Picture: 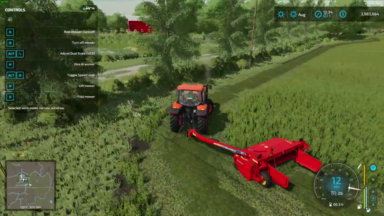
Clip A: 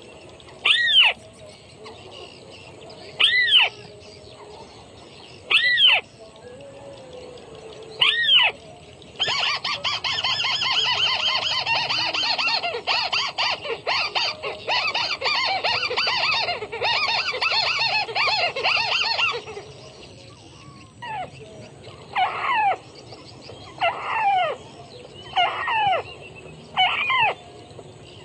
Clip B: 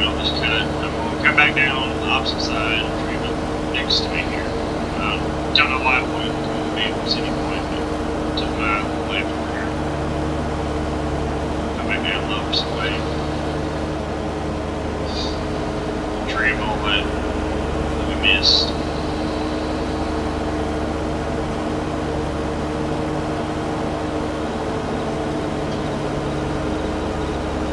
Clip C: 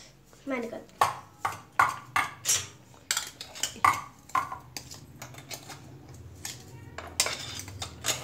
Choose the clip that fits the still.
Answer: B